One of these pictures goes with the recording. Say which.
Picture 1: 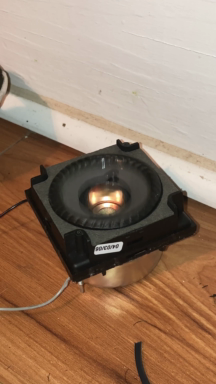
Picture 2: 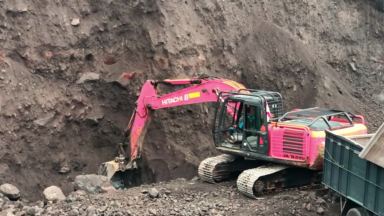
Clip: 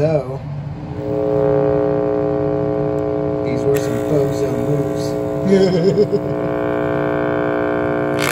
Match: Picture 1